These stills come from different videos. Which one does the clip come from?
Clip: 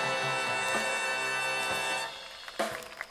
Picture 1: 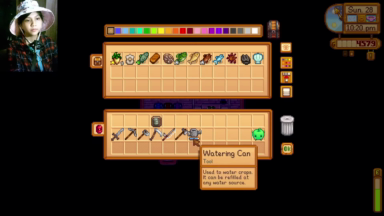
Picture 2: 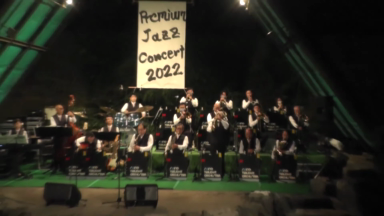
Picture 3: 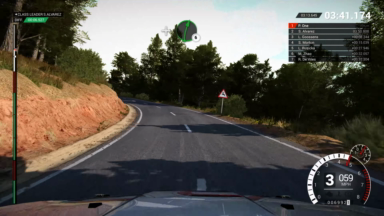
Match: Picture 2